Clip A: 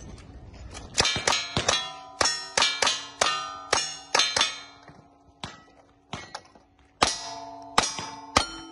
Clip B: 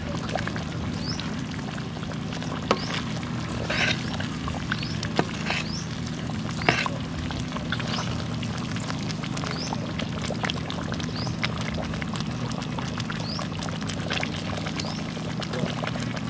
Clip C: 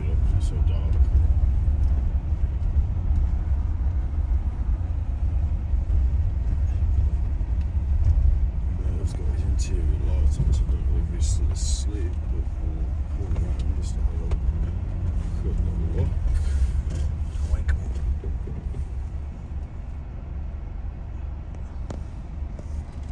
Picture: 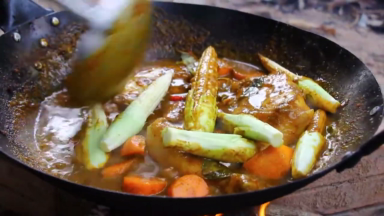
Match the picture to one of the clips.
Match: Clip B